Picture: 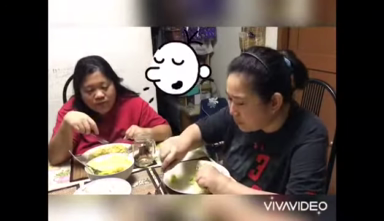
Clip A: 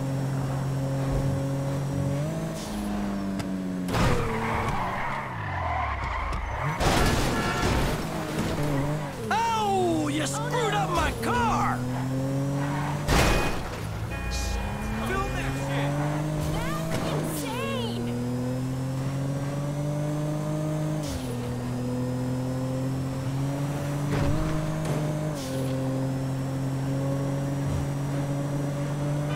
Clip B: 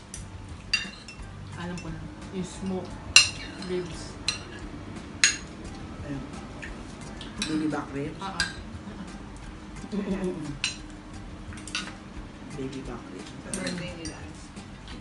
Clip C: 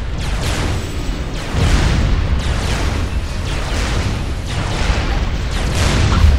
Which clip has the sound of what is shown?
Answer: B